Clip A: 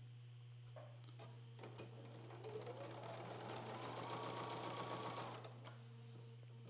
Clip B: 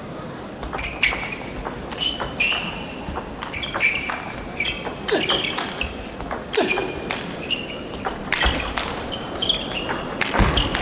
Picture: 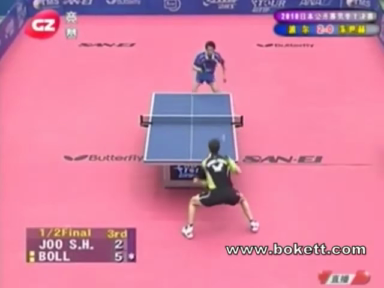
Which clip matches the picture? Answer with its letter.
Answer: B